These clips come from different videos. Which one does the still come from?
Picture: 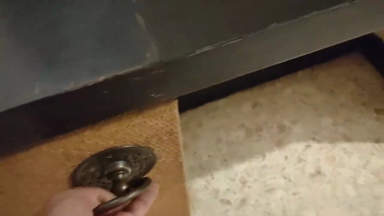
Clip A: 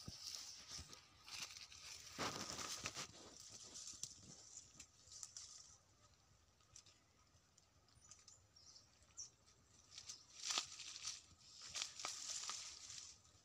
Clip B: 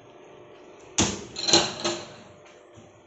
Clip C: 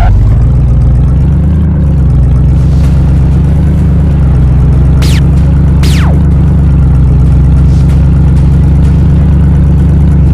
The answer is B